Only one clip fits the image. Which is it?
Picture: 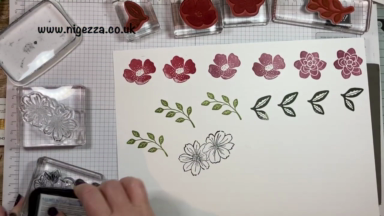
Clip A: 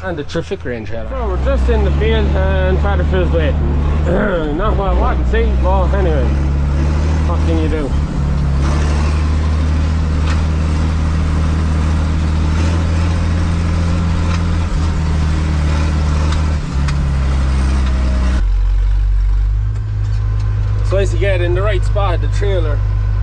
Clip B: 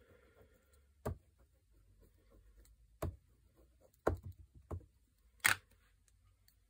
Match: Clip B